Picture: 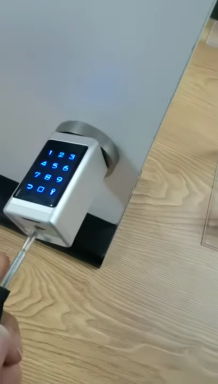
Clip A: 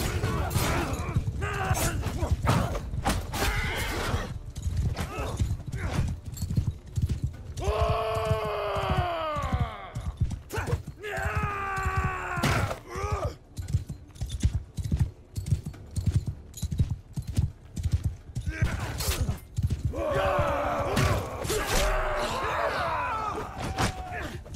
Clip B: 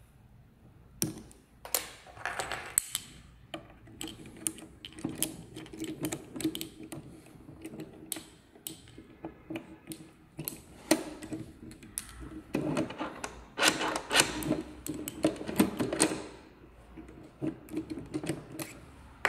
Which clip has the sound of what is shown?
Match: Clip B